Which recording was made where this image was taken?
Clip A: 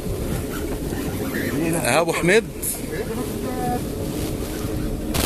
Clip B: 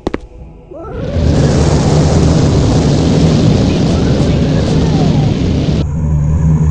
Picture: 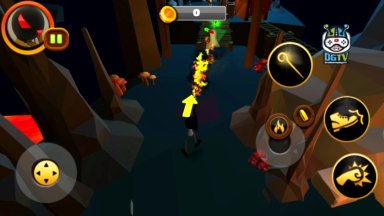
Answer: B